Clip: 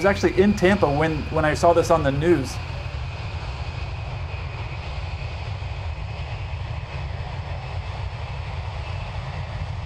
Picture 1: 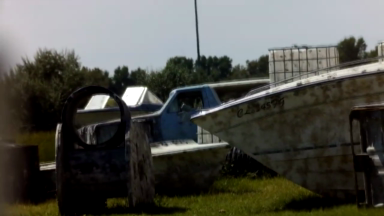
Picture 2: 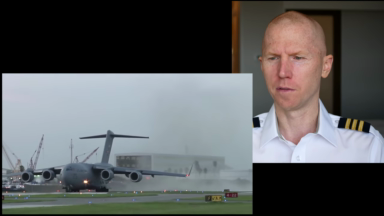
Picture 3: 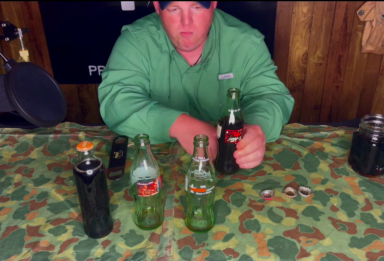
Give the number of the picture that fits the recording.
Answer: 2